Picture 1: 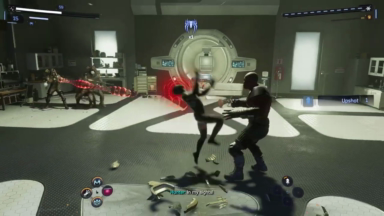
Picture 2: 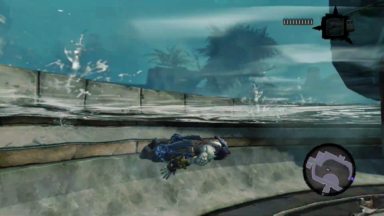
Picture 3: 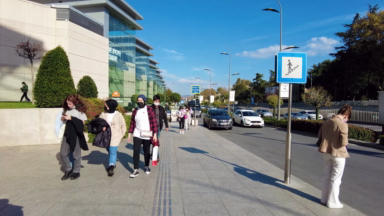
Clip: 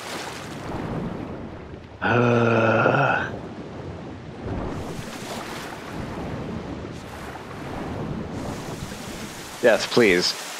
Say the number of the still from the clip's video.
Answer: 2